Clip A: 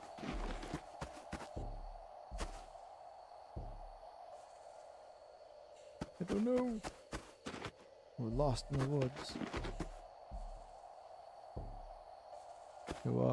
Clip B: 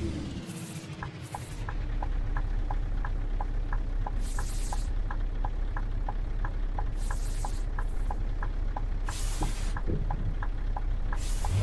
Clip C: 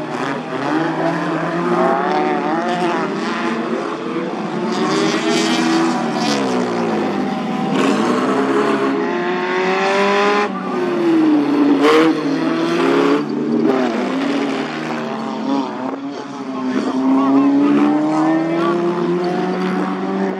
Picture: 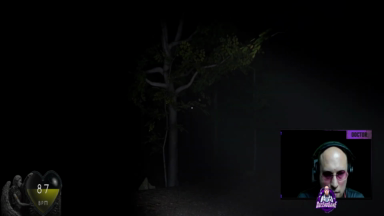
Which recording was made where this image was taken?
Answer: A